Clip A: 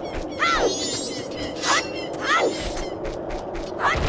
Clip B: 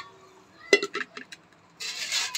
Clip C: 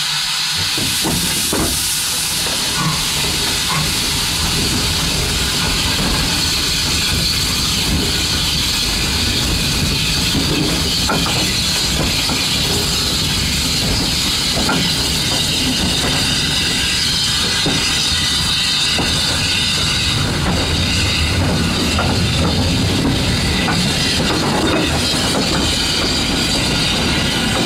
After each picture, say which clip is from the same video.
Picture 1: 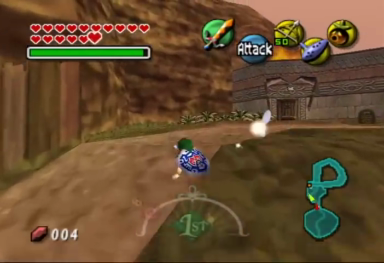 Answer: A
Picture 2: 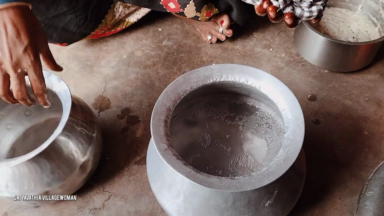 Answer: B